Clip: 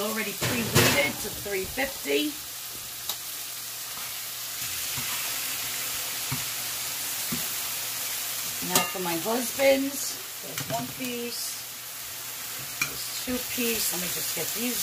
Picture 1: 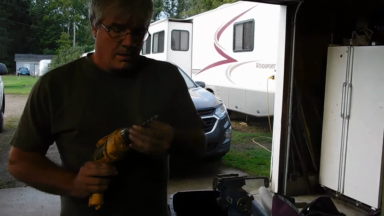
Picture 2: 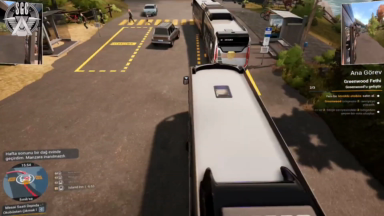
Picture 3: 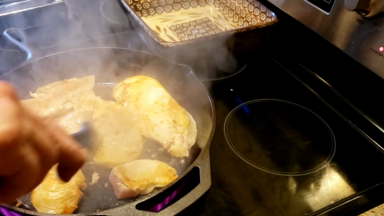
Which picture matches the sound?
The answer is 3